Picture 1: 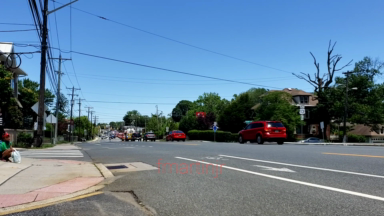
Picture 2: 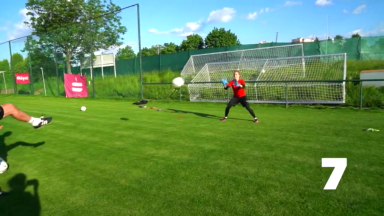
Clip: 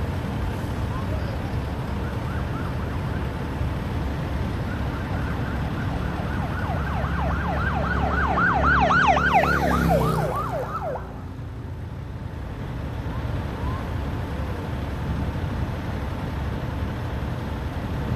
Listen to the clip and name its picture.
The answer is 1